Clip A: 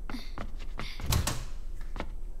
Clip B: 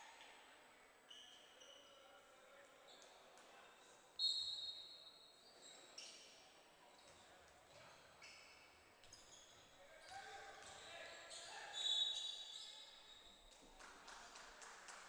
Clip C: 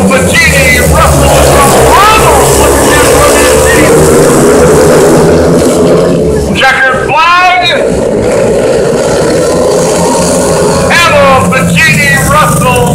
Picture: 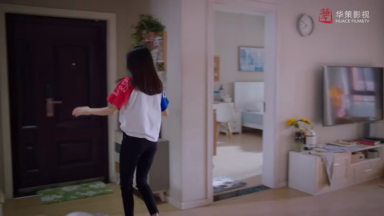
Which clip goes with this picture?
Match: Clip A